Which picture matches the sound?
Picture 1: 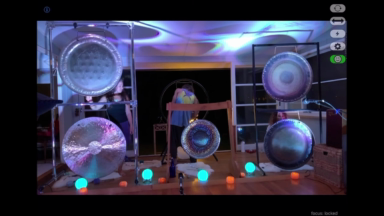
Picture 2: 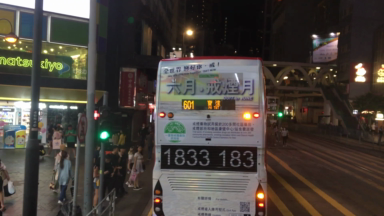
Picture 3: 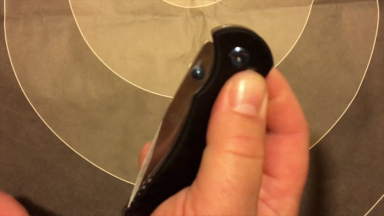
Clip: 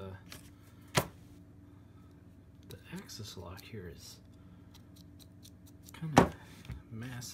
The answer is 3